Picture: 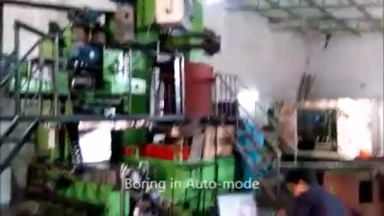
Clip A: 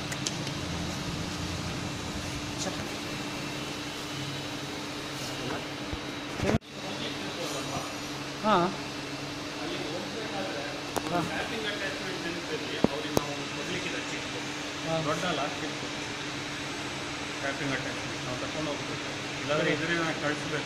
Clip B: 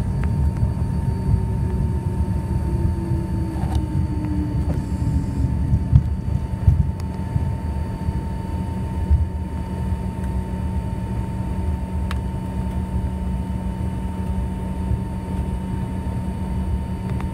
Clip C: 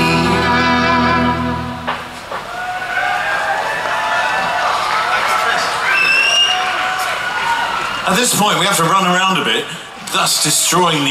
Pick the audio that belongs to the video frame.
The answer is A